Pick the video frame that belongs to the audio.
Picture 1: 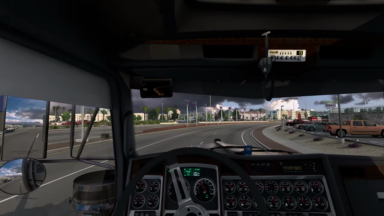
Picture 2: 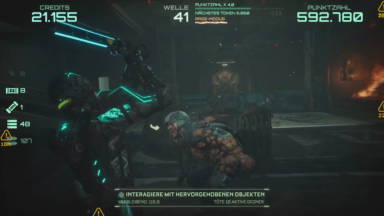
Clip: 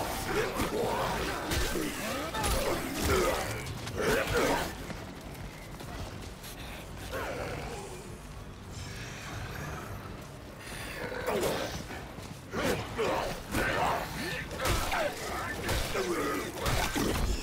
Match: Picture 2